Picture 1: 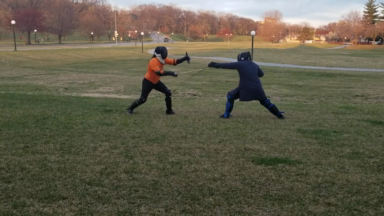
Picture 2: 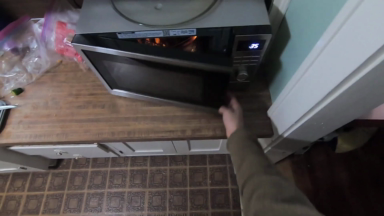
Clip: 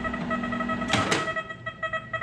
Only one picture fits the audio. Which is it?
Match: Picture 2